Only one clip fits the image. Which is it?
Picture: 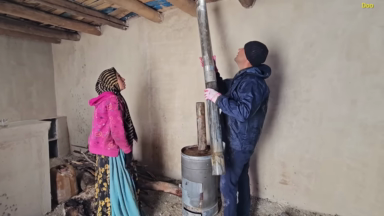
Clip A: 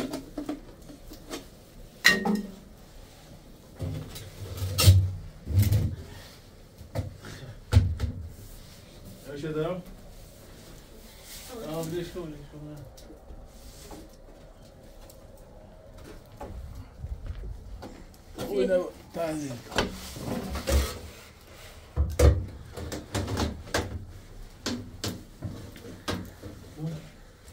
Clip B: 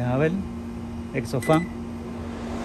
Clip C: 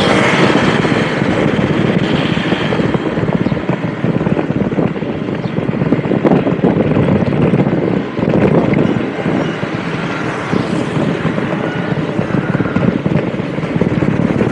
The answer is A